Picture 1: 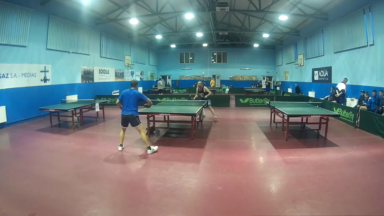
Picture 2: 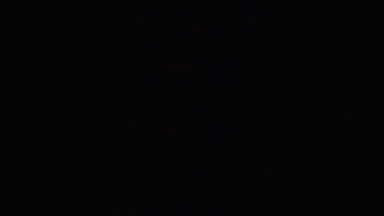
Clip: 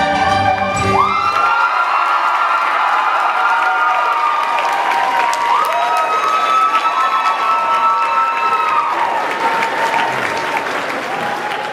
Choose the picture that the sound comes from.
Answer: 2